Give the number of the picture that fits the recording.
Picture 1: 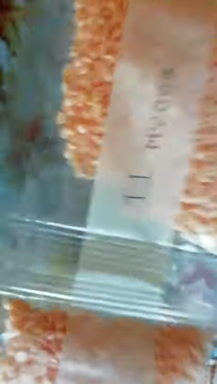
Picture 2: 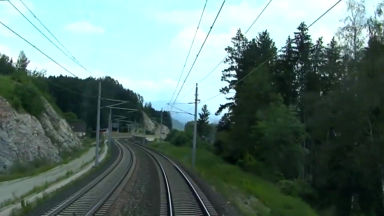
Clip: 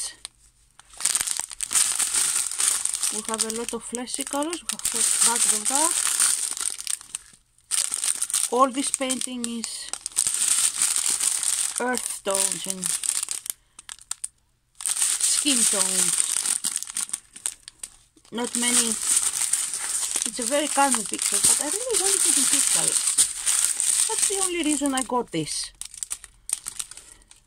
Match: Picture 1